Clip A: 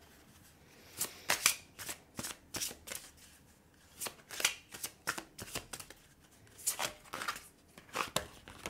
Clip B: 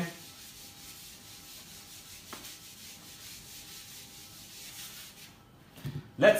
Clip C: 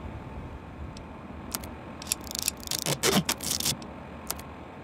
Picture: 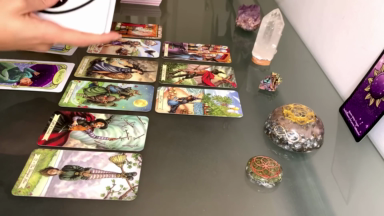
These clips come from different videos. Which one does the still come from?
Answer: A